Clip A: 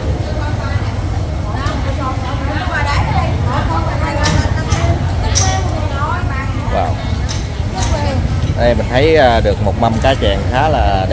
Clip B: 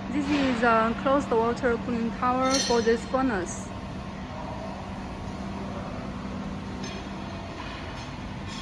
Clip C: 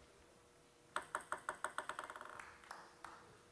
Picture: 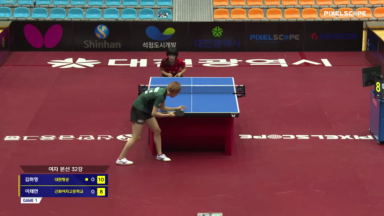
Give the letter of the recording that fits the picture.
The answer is C